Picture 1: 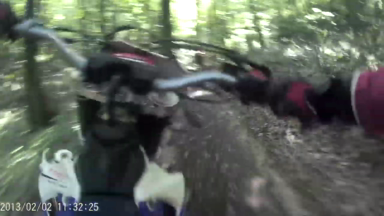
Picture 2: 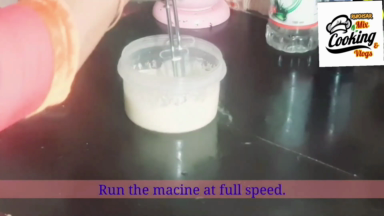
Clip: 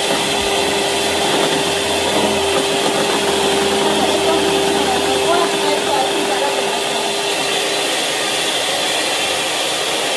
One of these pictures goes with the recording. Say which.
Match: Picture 2